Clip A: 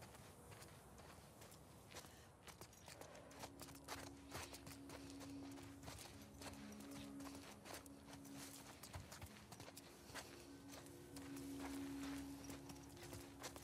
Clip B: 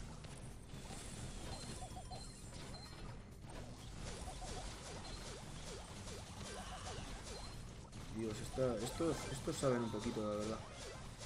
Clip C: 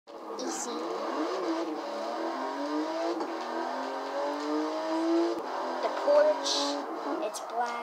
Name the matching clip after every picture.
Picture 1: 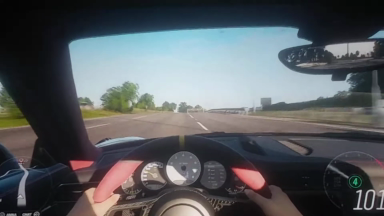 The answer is C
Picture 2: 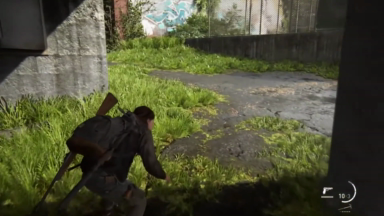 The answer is A